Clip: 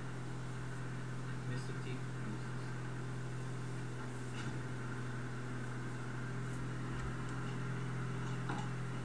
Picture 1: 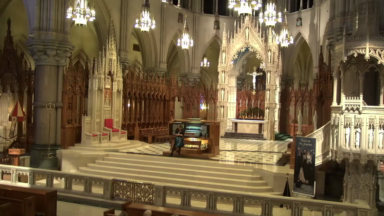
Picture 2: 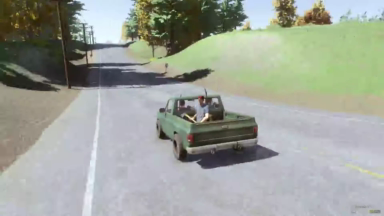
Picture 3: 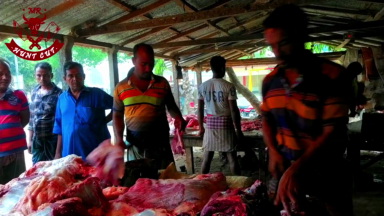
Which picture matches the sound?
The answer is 2